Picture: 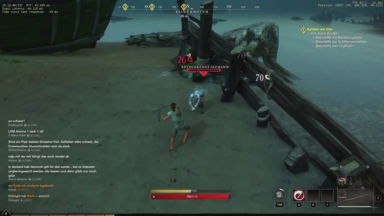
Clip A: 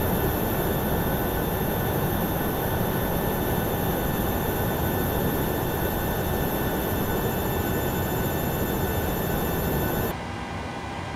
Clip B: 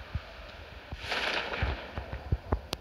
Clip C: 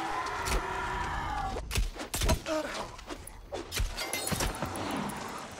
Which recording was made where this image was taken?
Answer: C